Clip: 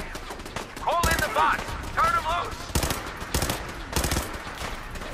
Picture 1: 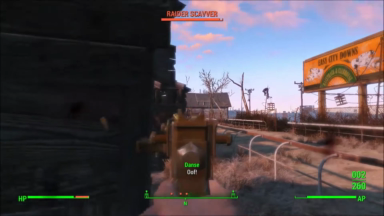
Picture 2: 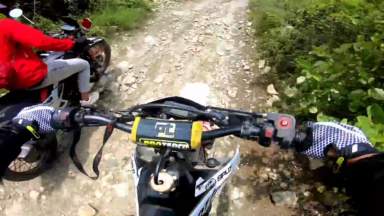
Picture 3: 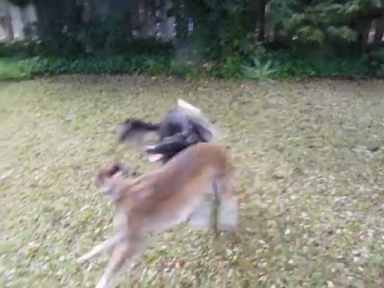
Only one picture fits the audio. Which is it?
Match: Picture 1